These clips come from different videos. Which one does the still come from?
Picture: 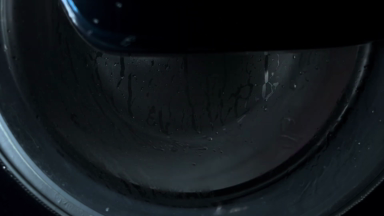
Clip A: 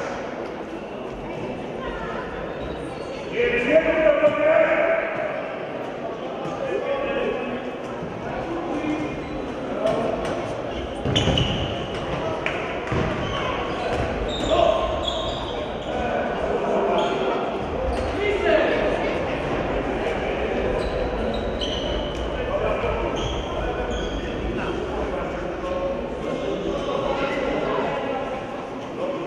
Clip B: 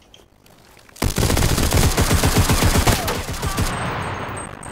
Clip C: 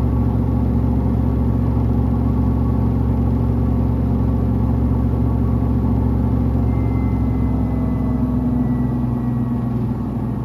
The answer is C